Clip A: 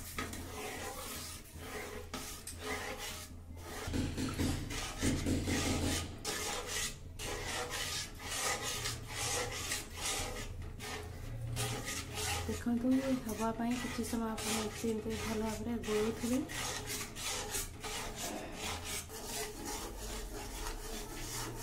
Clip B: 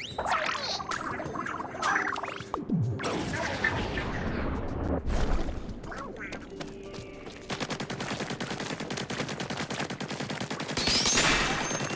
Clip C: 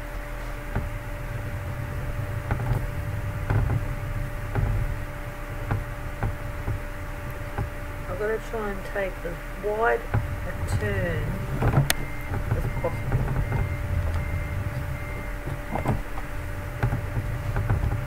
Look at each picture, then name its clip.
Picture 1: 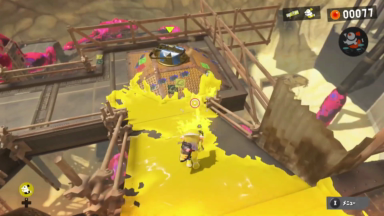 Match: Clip B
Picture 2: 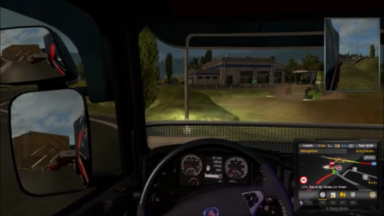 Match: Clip C